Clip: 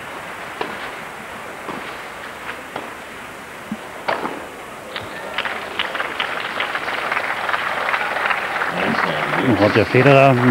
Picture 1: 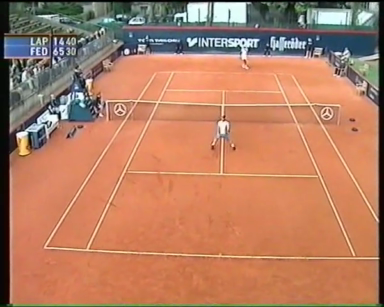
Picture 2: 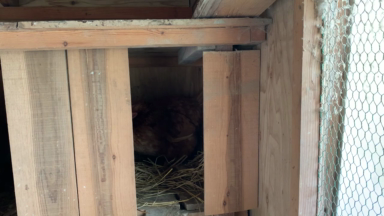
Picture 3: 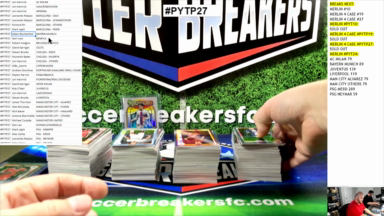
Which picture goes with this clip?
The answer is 1